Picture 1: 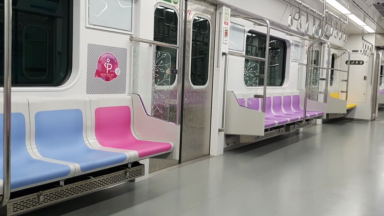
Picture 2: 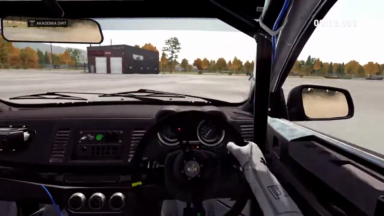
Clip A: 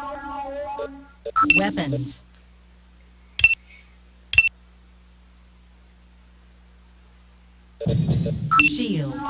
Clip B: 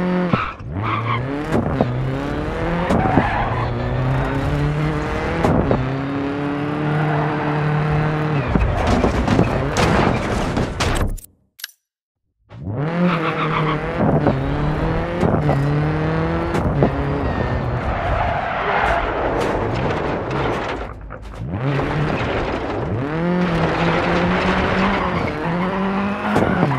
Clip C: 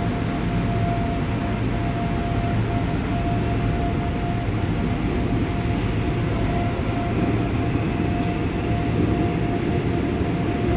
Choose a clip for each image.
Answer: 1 C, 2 B